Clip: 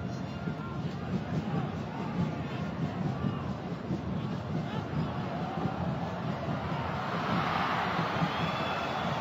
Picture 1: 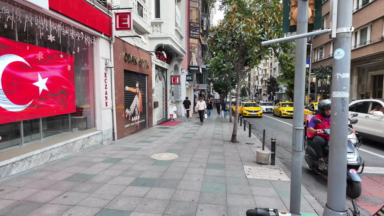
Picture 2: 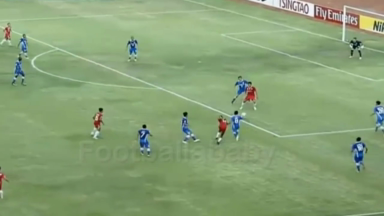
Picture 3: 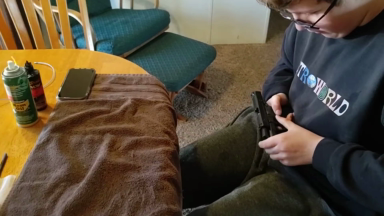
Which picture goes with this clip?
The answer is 2